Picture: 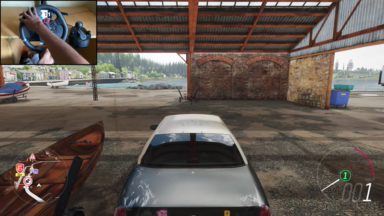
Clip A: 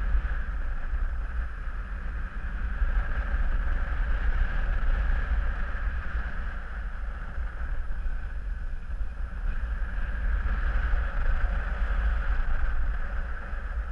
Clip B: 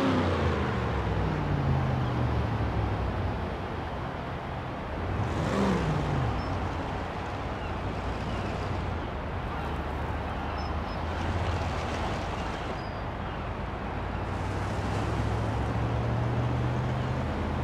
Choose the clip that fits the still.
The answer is B